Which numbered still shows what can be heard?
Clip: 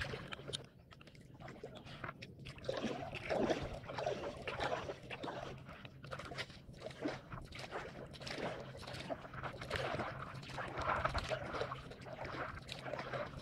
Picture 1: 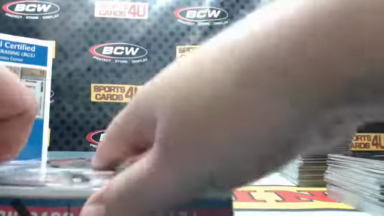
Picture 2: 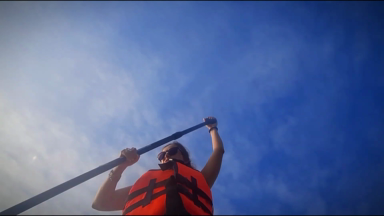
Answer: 2